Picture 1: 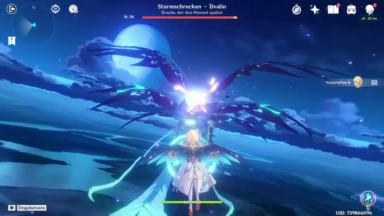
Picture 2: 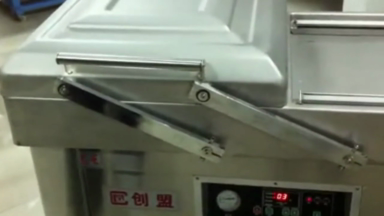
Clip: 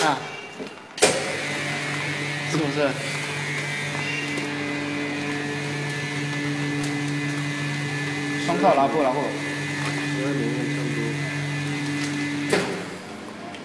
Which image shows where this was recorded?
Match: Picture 2